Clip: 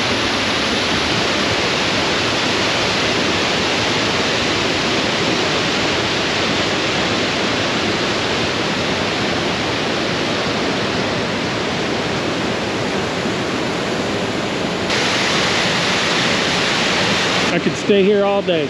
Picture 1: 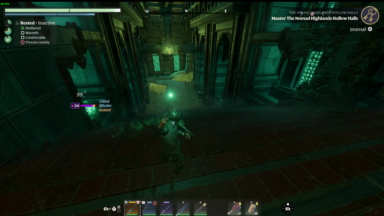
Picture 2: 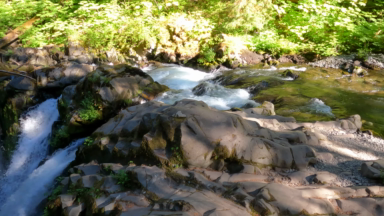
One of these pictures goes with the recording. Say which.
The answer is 2